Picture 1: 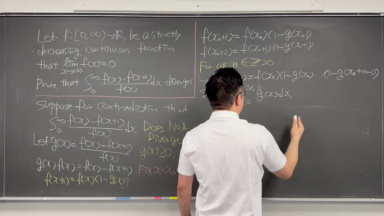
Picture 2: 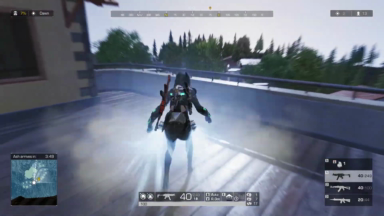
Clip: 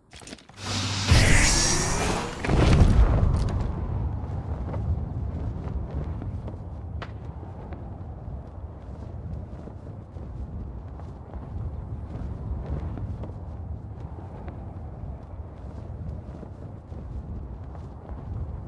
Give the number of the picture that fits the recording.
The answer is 2